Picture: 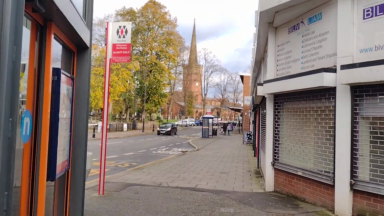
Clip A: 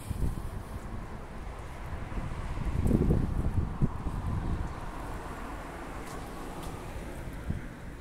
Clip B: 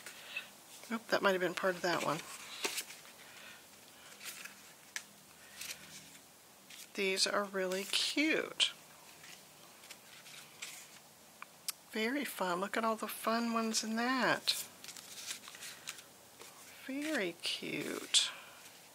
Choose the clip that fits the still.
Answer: A